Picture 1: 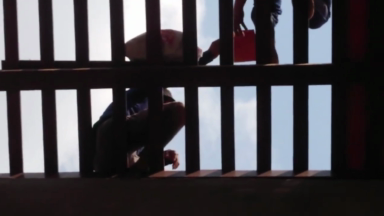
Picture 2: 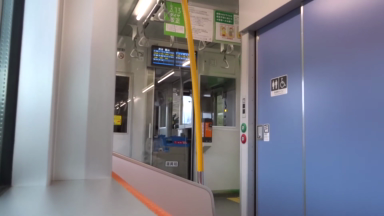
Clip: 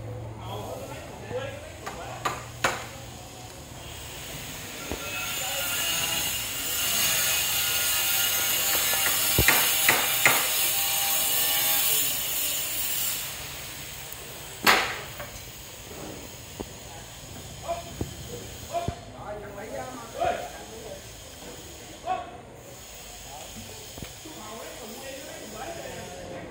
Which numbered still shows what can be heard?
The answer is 1